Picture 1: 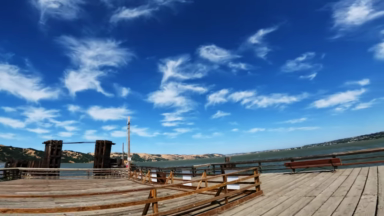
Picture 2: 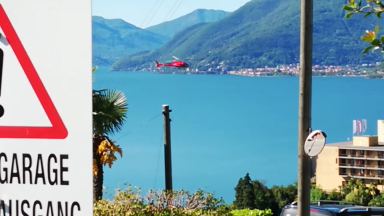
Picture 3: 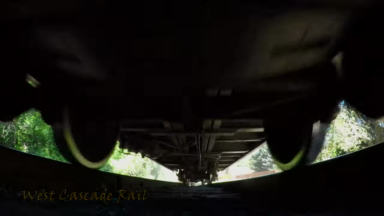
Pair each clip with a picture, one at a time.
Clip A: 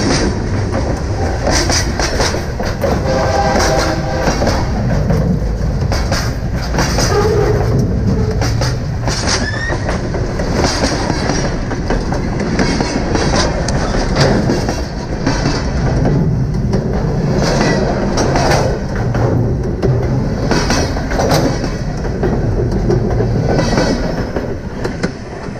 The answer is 3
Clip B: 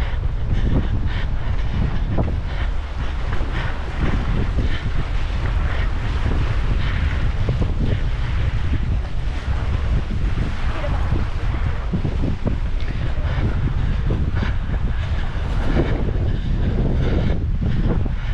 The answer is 1